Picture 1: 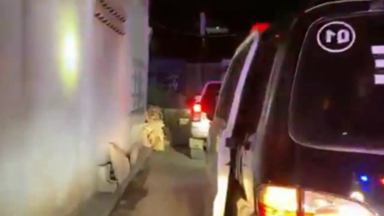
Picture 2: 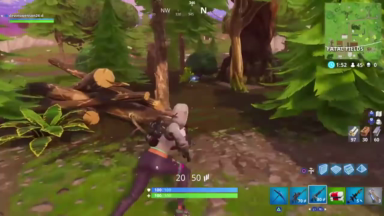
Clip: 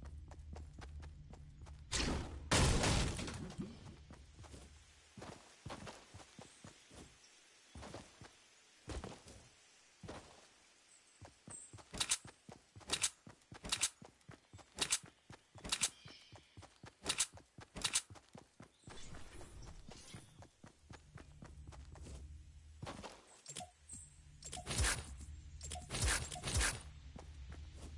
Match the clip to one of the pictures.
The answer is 2